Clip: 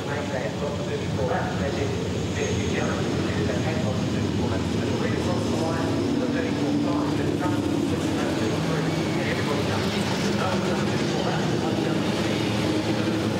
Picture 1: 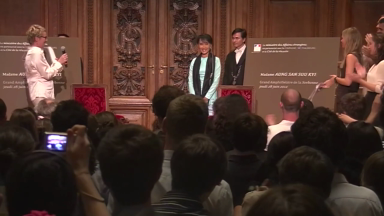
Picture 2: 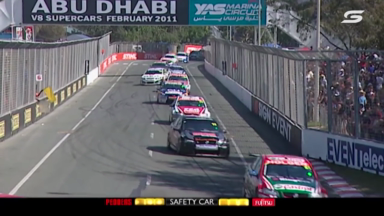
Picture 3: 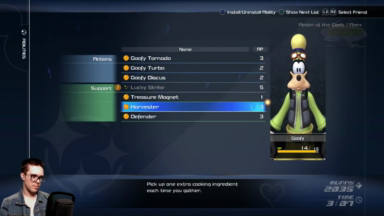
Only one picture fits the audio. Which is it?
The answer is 2